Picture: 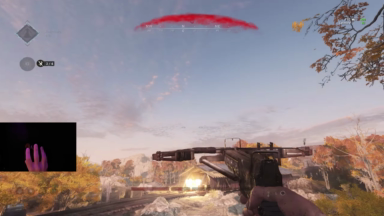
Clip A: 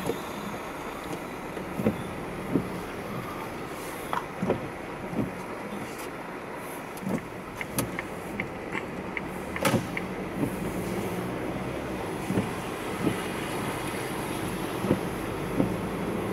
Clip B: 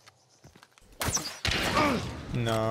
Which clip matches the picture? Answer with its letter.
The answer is B